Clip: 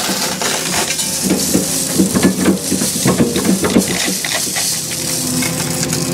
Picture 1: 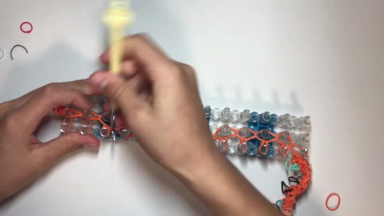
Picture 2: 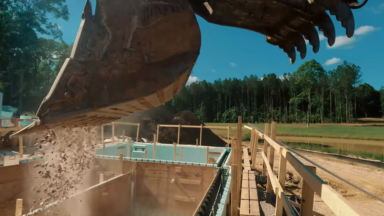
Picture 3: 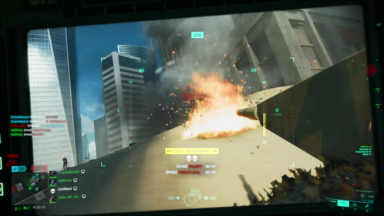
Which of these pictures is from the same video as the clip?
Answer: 2